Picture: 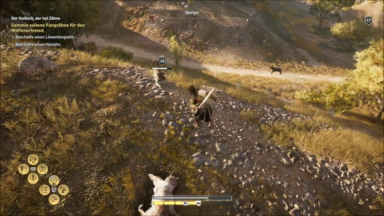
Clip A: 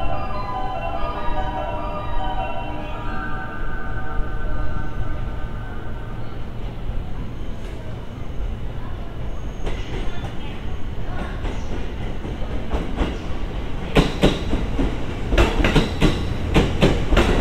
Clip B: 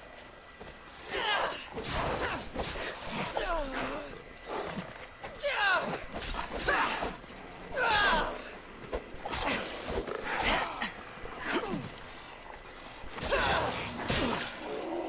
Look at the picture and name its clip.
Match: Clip B